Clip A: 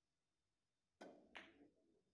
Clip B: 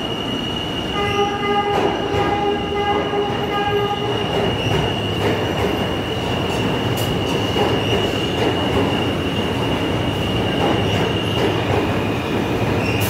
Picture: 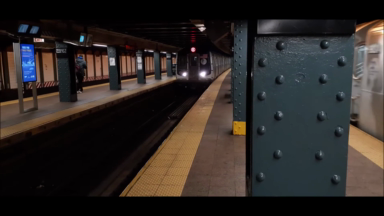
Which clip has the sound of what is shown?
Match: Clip B